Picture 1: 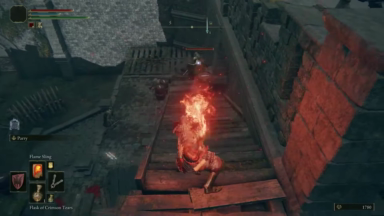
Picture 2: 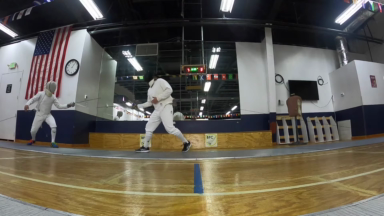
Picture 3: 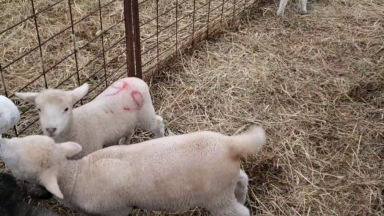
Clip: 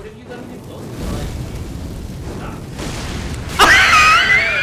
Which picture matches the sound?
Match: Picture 1